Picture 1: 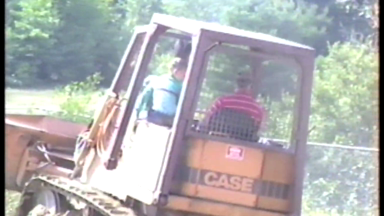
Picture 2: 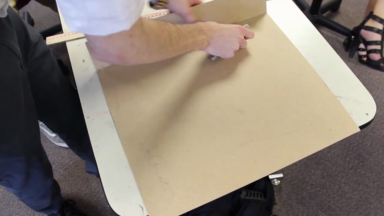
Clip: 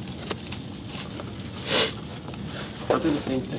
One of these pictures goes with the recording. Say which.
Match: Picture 2